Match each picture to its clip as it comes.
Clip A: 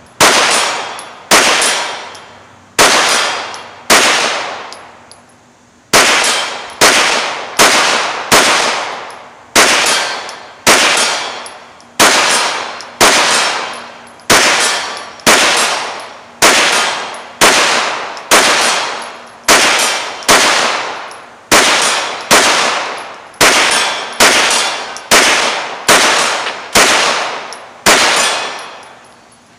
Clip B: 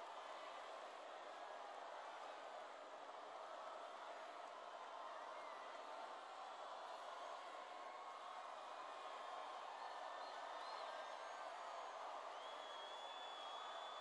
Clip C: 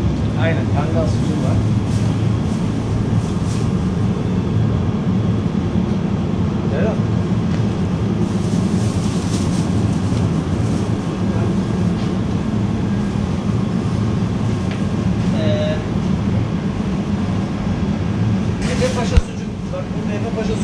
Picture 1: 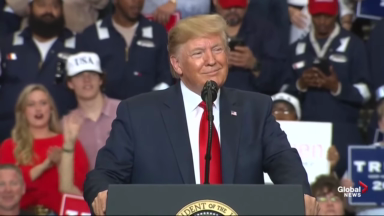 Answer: B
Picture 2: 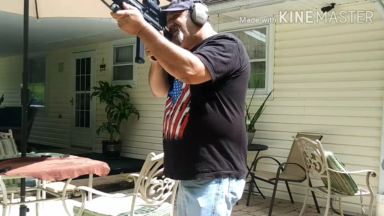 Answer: A